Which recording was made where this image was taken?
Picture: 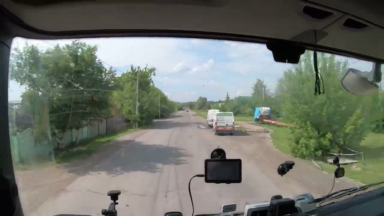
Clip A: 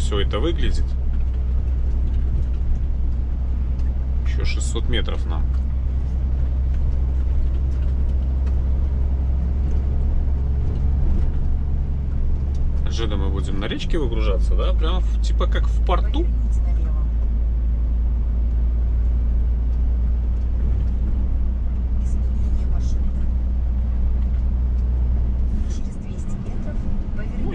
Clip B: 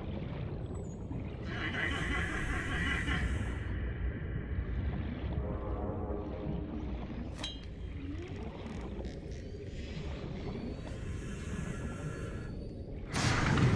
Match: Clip A